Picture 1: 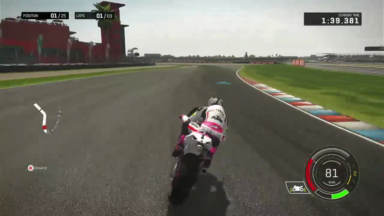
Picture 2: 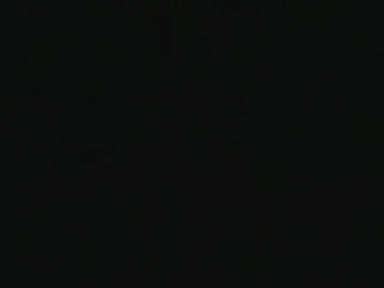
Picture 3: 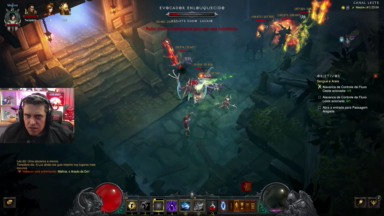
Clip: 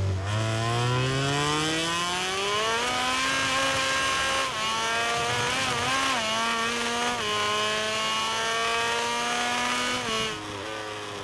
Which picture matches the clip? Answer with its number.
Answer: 1